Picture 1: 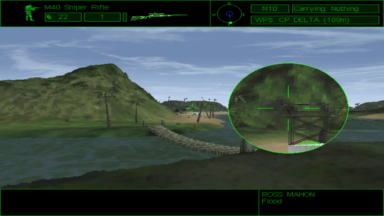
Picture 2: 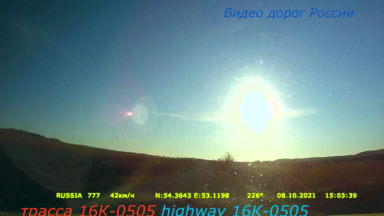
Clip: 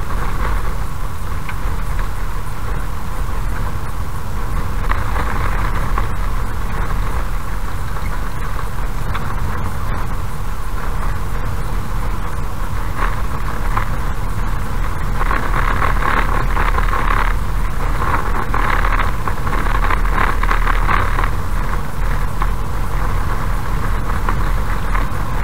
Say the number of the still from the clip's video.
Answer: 2